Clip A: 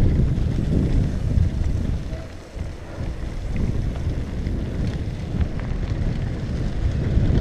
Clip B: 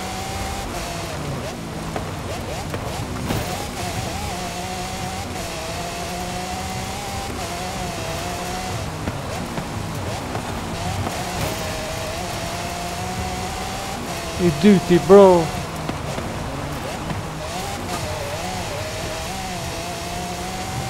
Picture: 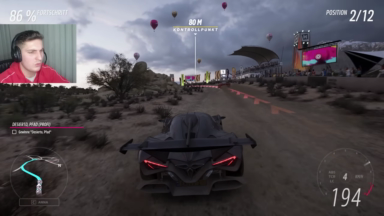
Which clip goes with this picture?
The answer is B